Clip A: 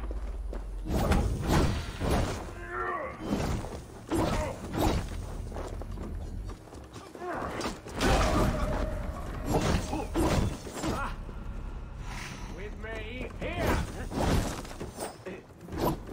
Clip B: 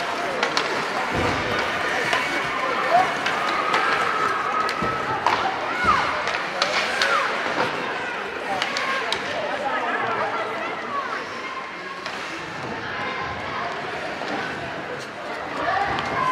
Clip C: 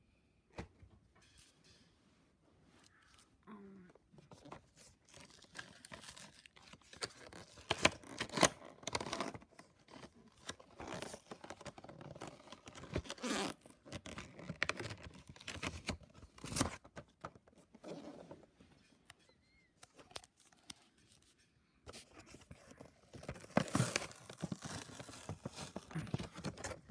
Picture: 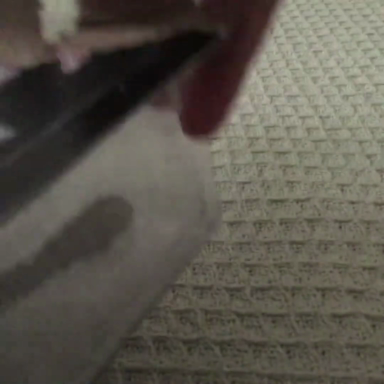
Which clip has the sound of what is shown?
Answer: C